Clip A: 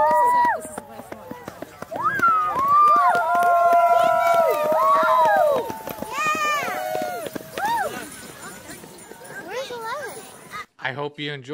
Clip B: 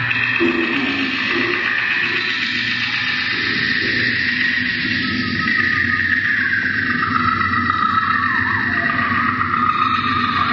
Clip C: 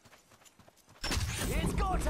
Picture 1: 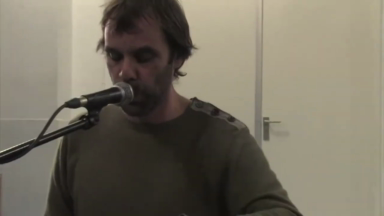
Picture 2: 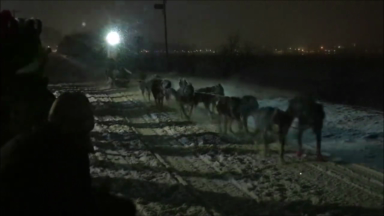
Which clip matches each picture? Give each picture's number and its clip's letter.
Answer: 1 B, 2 A